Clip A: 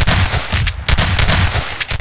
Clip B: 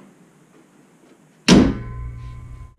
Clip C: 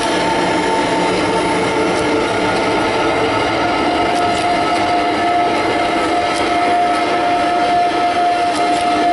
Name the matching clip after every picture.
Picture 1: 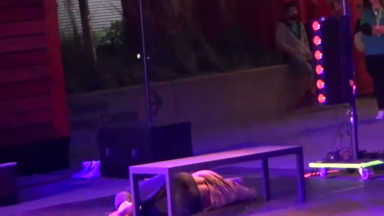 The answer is C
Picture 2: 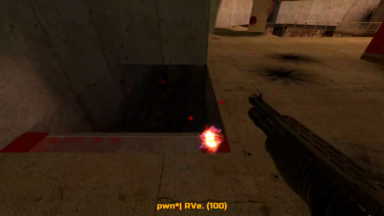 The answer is A